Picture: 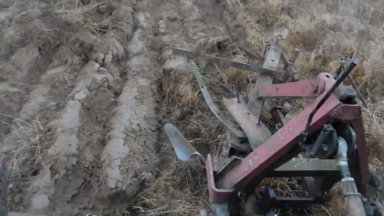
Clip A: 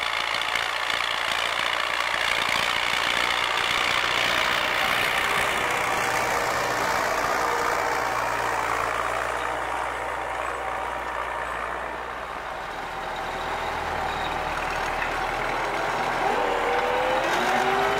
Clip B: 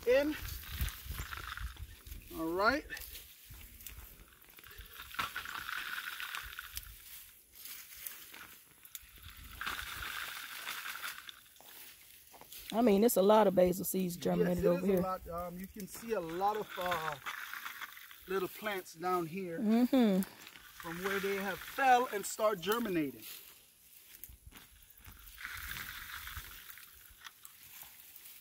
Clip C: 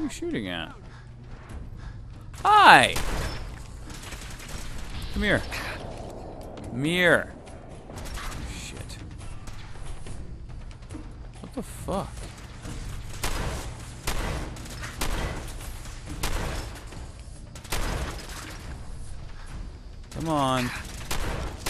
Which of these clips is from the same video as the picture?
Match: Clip A